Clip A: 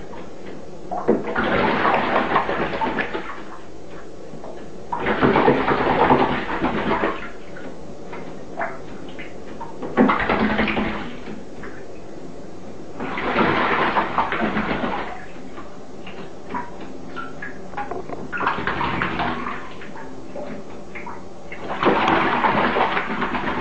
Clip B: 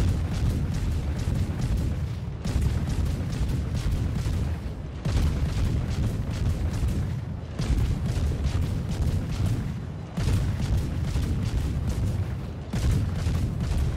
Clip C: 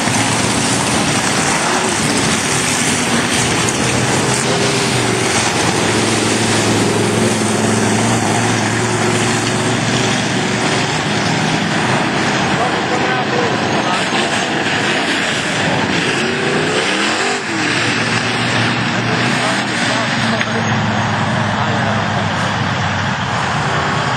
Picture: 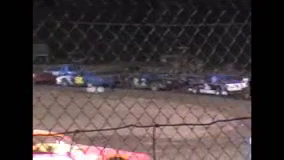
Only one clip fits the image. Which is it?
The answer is C